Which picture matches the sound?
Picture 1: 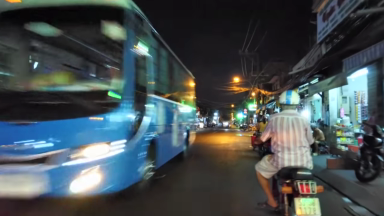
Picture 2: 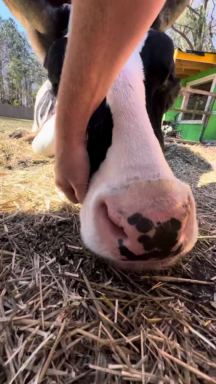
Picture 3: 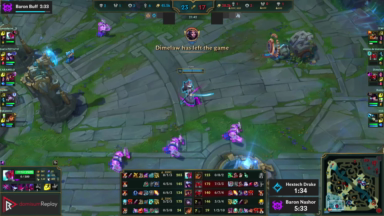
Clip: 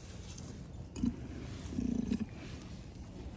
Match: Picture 2